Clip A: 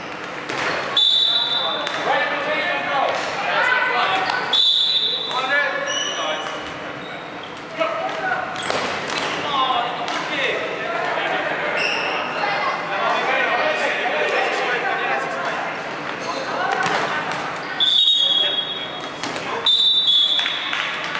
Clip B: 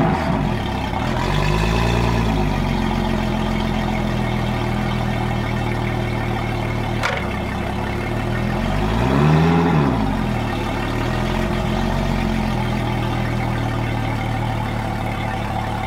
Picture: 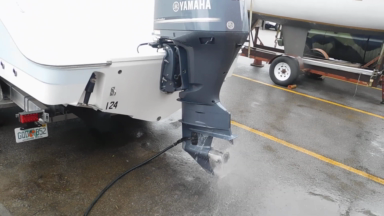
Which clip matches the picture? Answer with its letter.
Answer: B